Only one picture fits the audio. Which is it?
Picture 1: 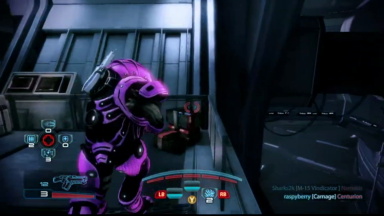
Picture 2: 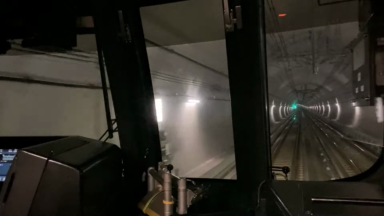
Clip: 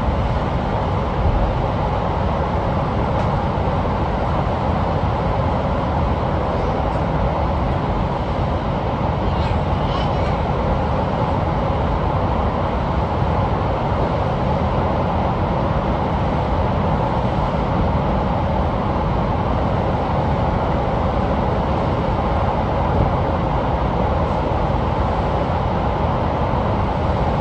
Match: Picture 2